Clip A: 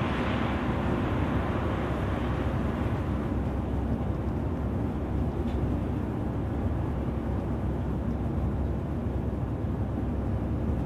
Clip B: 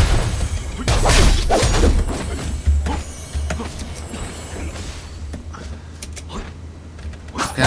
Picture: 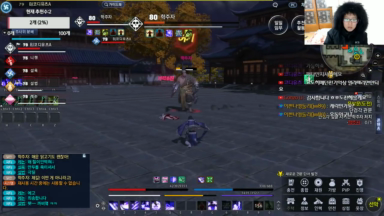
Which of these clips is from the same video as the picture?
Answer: B